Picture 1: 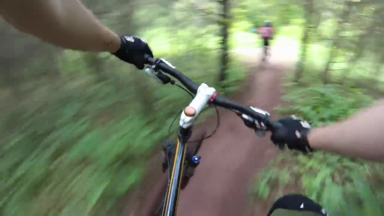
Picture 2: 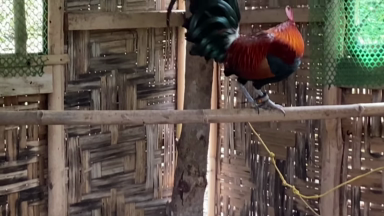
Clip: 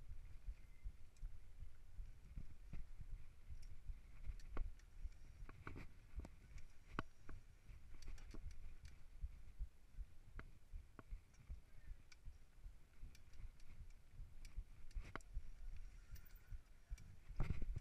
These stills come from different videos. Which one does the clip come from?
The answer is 1